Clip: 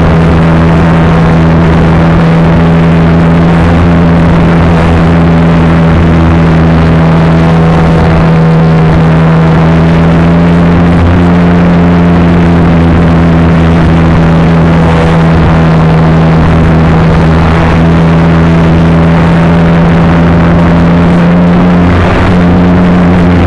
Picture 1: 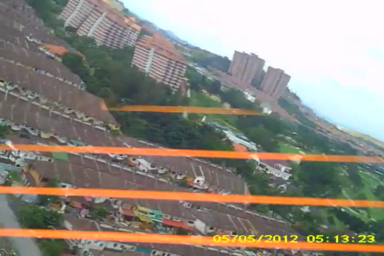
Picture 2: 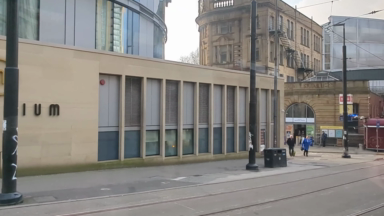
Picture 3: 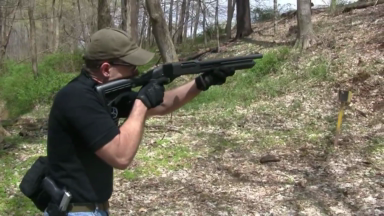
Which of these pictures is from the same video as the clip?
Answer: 1